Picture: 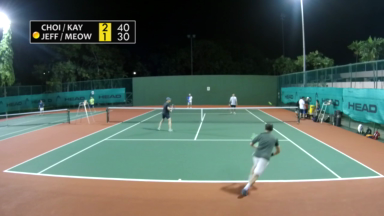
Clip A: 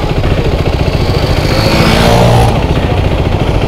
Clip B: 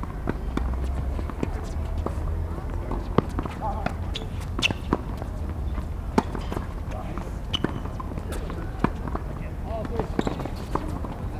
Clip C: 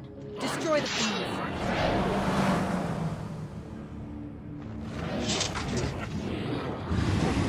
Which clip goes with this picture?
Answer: B